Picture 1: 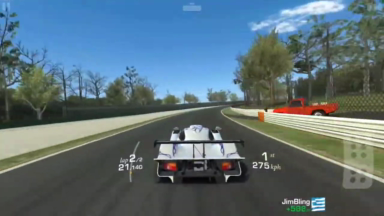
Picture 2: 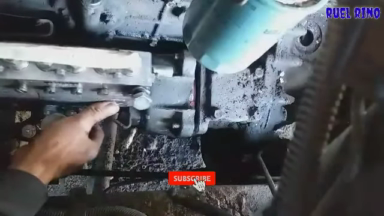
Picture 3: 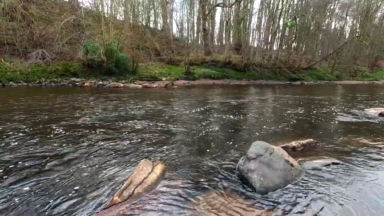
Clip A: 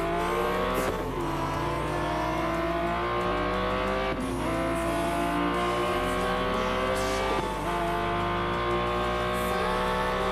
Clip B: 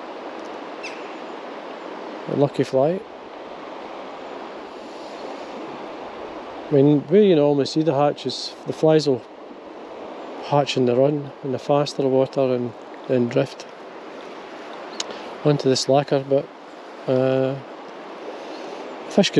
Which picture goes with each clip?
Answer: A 1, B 3